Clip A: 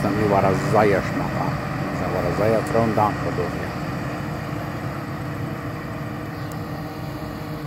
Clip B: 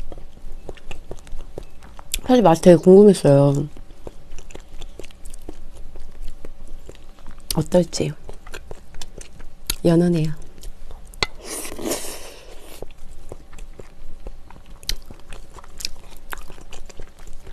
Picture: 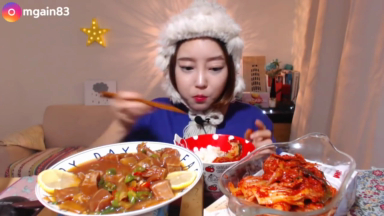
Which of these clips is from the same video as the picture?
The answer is B